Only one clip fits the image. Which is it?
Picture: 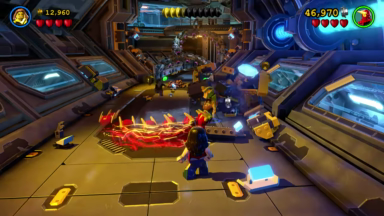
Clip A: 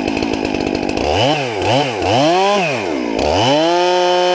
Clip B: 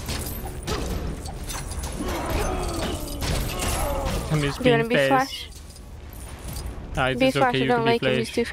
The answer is B